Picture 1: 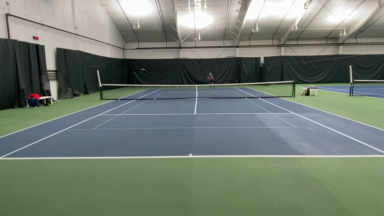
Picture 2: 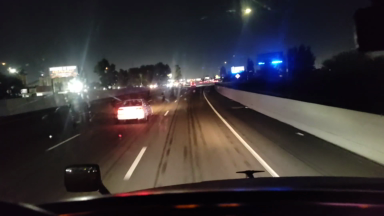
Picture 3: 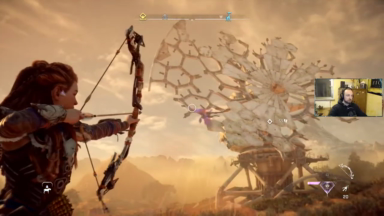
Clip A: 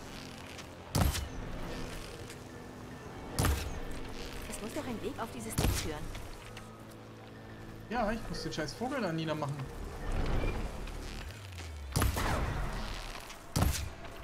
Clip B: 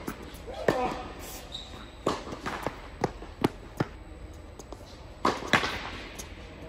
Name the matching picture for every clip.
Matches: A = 3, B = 1